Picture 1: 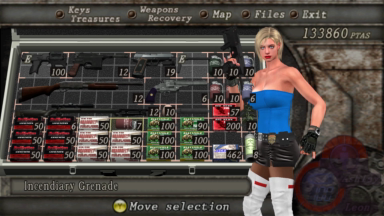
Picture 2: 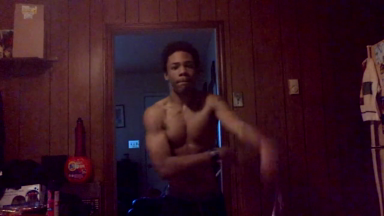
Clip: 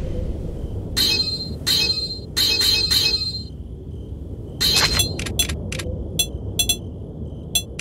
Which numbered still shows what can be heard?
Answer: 1